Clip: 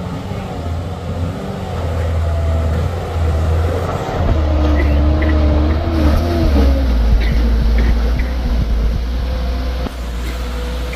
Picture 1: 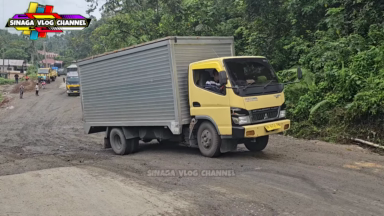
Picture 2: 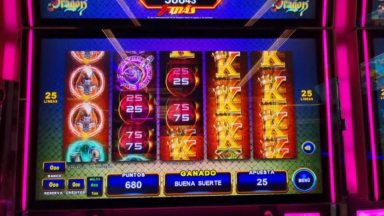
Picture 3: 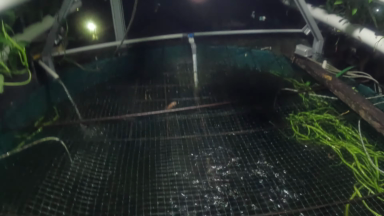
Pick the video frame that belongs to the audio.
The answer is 1